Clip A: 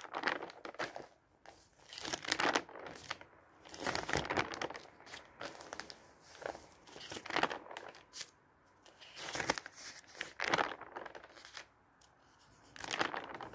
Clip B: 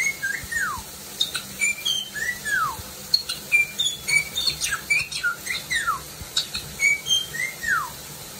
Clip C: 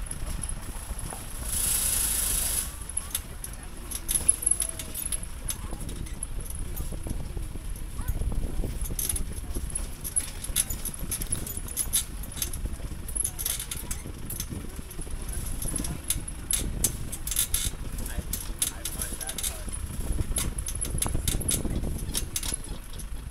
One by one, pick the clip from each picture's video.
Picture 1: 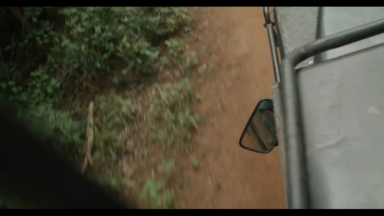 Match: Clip C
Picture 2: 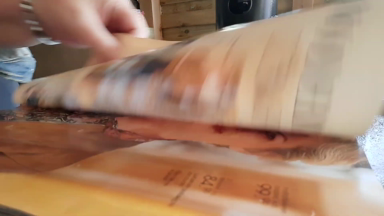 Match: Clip A